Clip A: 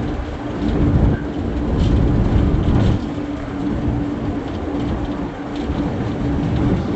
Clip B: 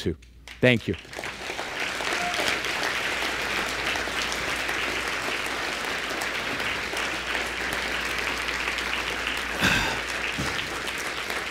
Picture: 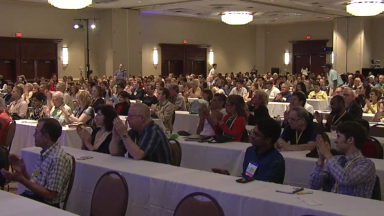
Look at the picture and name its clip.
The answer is B